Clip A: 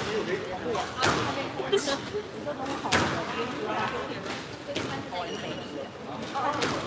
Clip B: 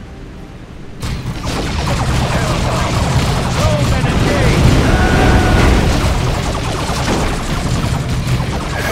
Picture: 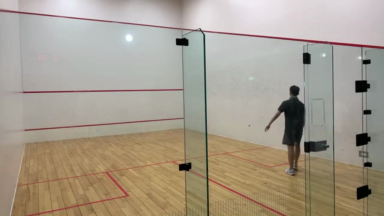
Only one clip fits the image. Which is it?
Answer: A